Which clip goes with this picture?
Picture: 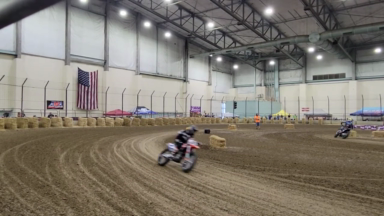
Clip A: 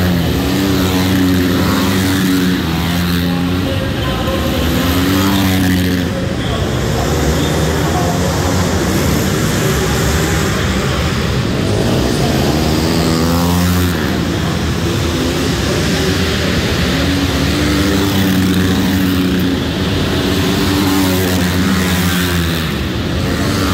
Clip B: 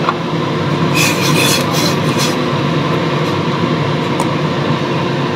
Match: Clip A